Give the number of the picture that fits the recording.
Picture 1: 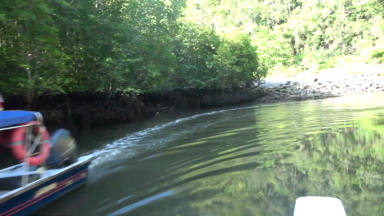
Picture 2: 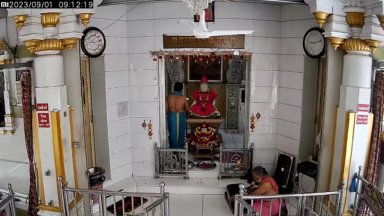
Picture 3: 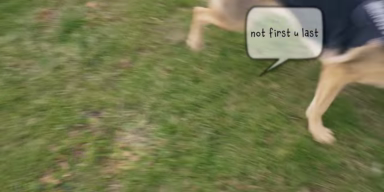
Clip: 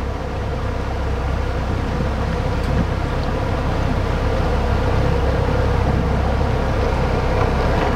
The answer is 1